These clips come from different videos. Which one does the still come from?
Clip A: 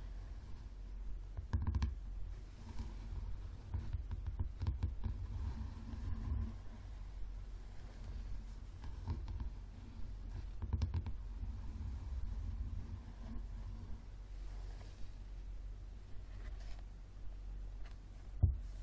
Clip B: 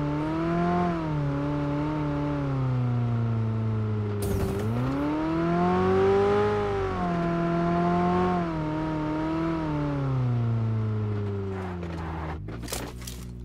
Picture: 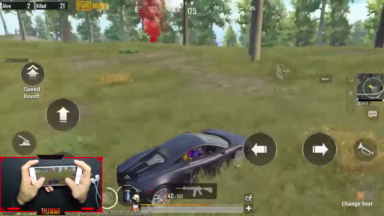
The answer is B